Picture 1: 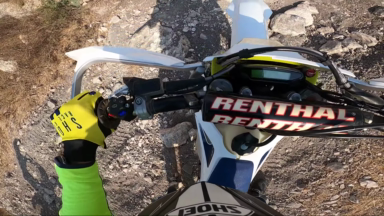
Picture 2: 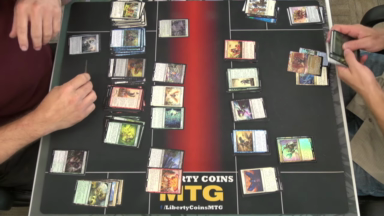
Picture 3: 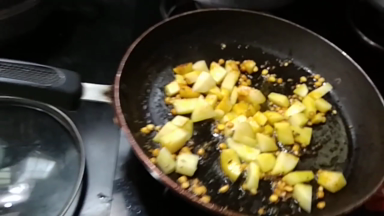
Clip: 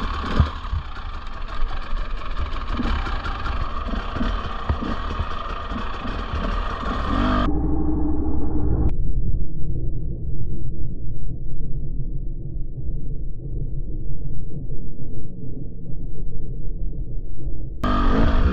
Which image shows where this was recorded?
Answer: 1